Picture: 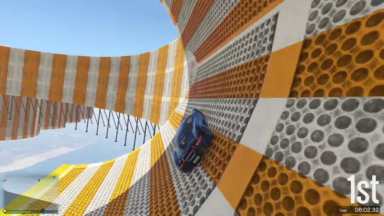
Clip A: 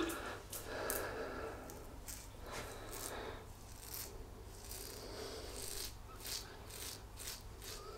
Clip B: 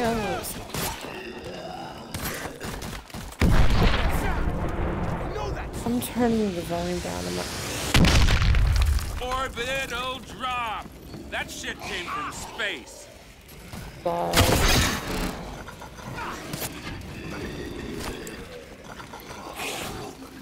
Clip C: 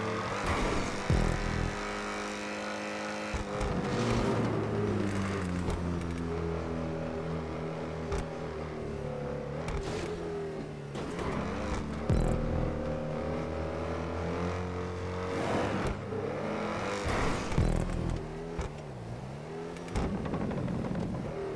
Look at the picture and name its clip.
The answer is C